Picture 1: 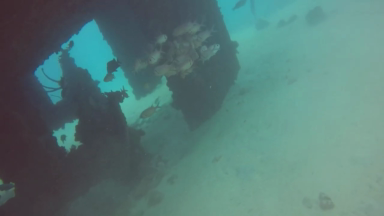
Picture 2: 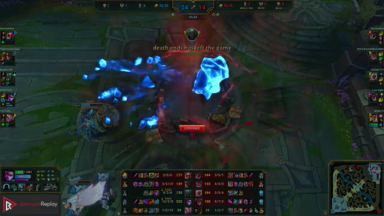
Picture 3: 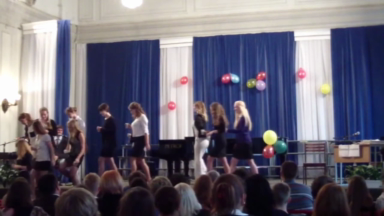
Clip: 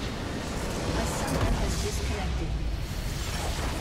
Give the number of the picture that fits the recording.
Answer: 2